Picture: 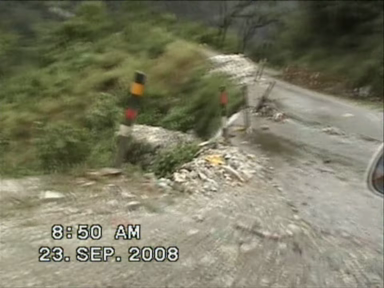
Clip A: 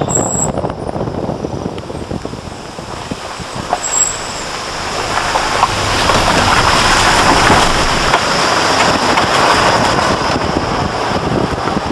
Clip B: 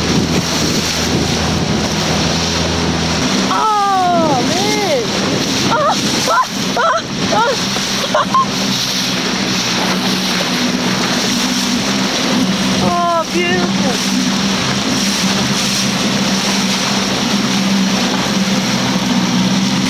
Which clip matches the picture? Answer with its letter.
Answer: A